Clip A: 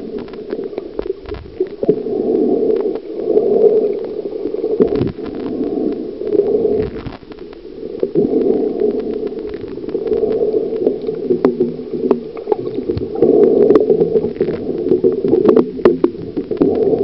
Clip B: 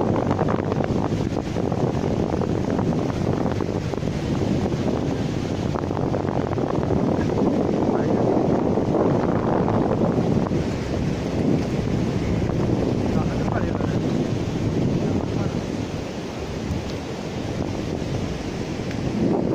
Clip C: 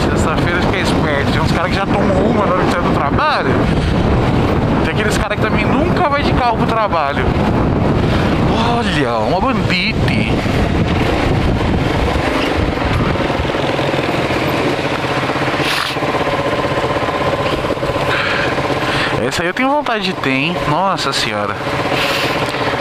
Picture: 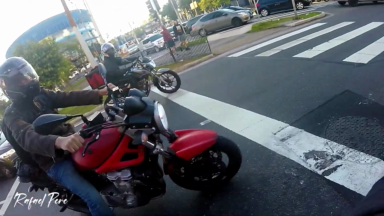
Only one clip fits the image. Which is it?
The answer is C